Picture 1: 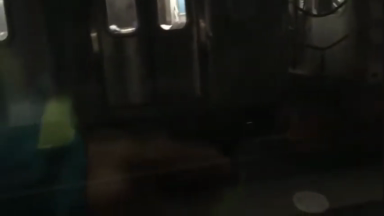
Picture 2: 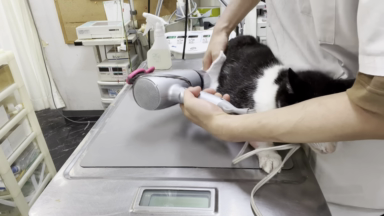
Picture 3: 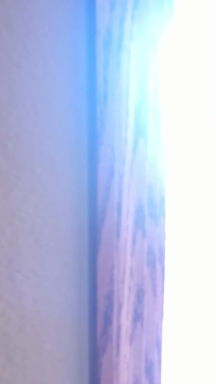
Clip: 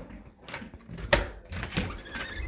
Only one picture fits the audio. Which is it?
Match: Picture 3